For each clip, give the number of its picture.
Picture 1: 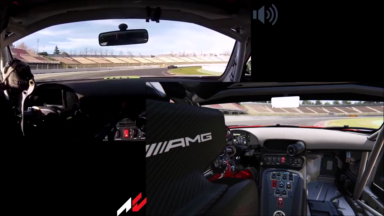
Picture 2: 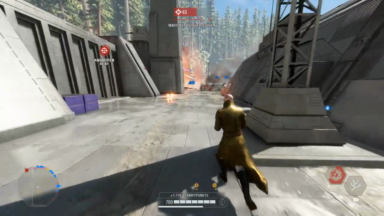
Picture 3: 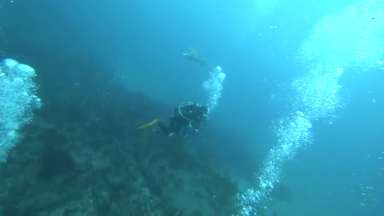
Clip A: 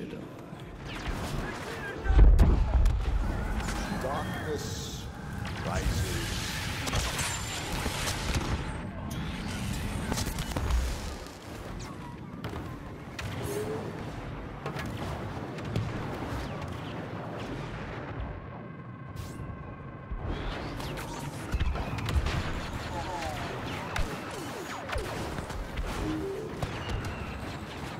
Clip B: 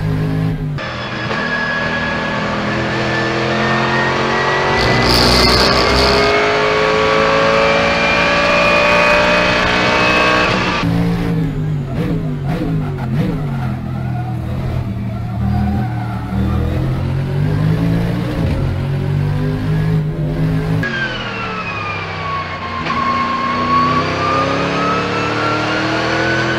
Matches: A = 2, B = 1